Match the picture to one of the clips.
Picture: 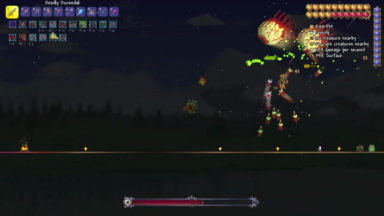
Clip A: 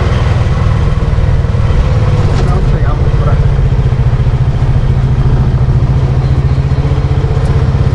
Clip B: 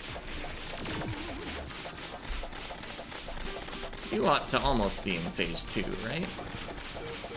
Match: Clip B